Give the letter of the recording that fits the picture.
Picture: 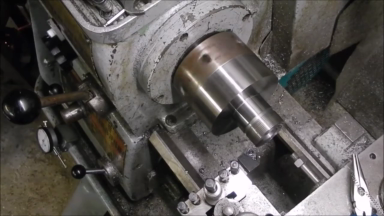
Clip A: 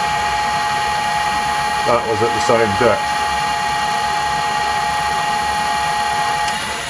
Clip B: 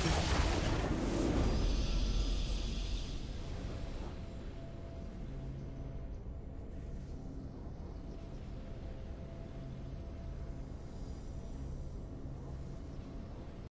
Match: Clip A